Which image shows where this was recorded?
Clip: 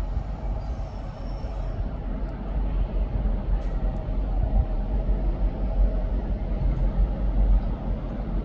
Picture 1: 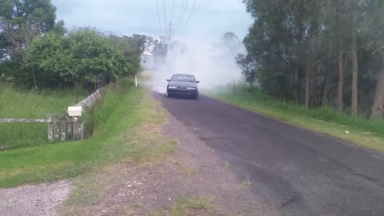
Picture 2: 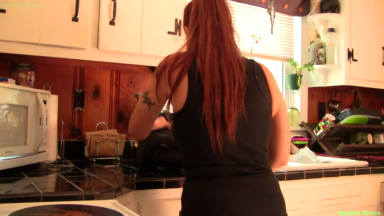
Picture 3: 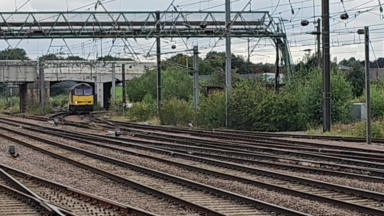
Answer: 3